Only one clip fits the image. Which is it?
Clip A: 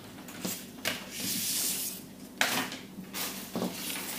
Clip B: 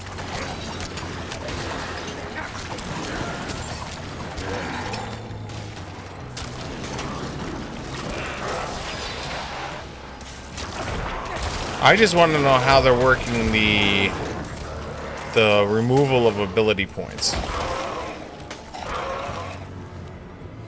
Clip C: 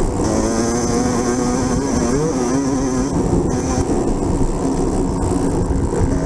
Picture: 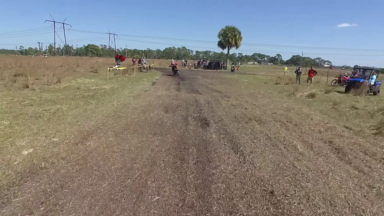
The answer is C